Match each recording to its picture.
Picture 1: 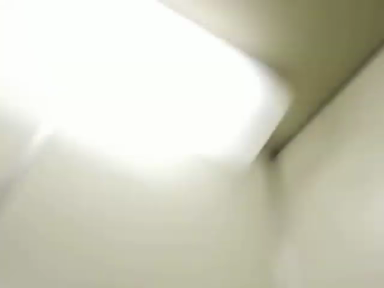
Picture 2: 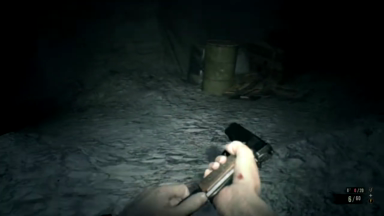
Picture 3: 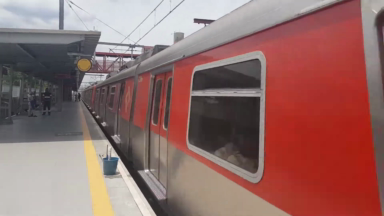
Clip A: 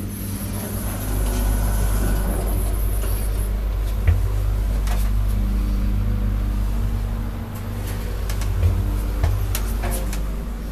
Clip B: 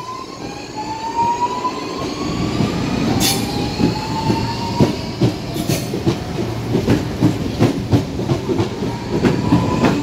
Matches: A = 1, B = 3